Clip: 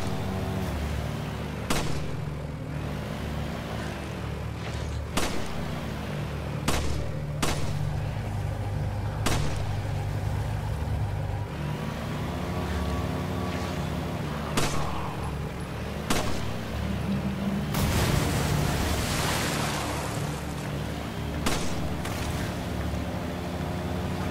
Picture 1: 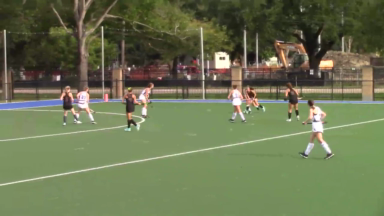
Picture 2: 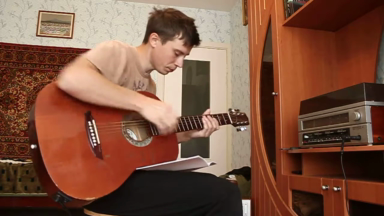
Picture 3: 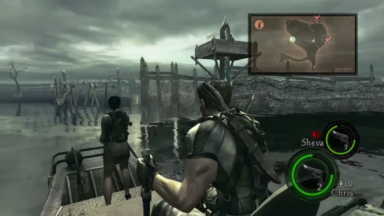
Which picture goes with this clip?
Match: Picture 3